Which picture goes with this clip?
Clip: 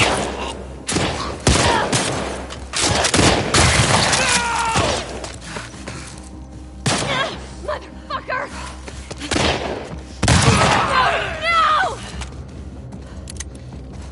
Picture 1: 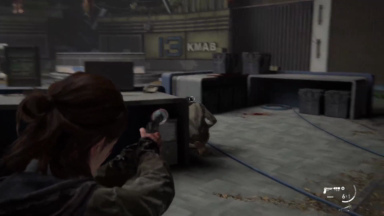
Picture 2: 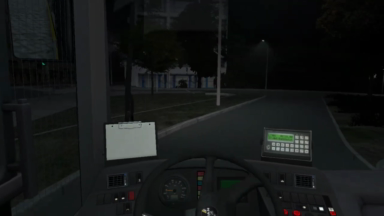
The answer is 1